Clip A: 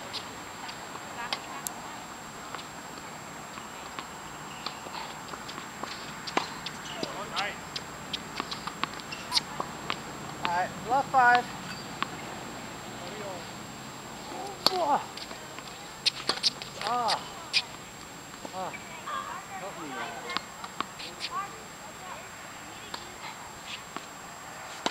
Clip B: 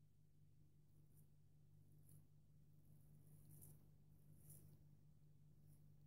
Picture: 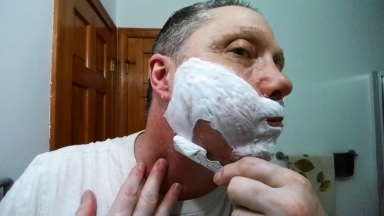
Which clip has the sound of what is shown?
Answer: B